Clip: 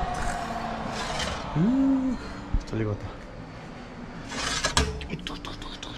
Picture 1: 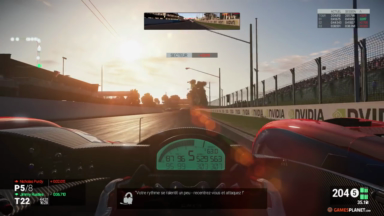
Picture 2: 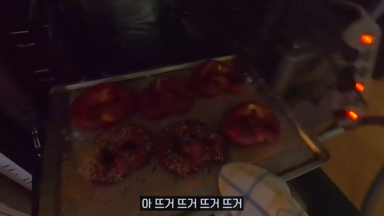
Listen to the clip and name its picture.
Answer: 2